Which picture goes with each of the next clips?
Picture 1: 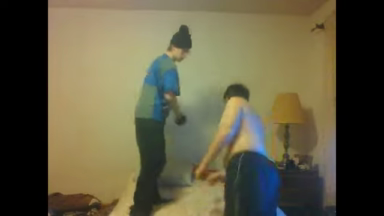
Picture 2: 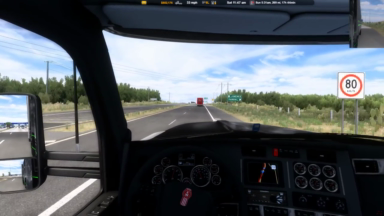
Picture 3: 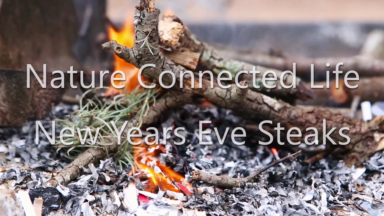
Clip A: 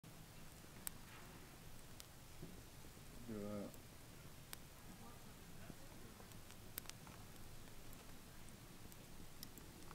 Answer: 3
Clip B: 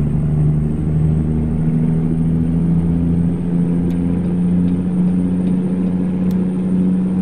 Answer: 2